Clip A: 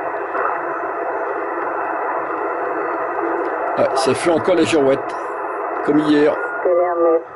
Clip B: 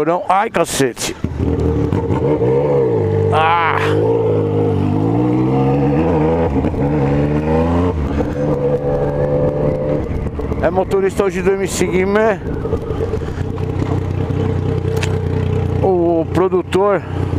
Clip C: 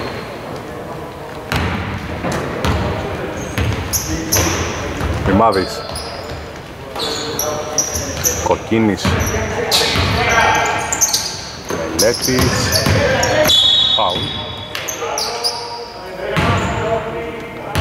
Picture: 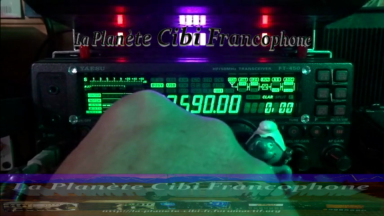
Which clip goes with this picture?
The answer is A